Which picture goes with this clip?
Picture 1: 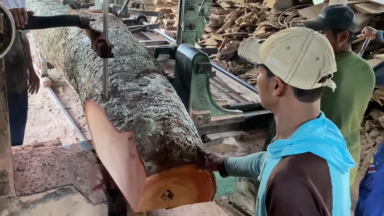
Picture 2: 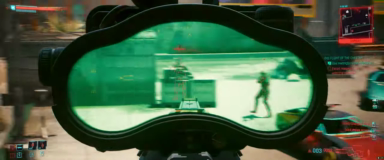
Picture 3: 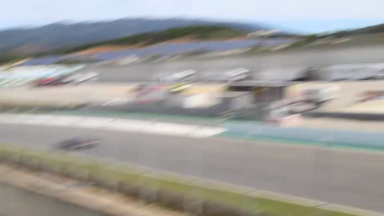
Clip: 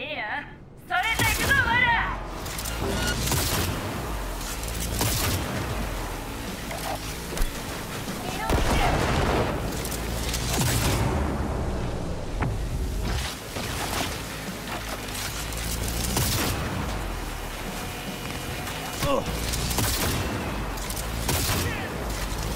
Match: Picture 2